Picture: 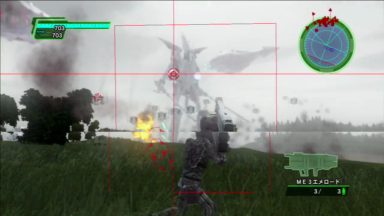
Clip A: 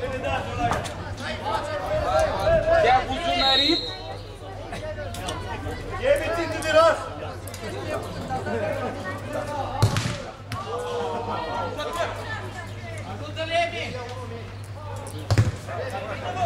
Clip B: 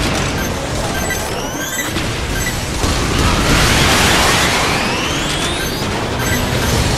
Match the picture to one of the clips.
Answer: B